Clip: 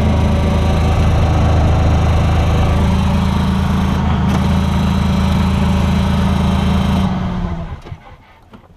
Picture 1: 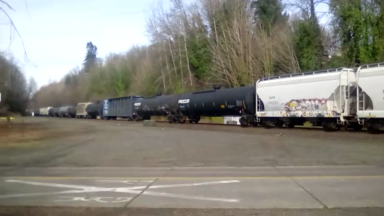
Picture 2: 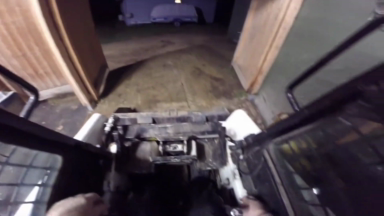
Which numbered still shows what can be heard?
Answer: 2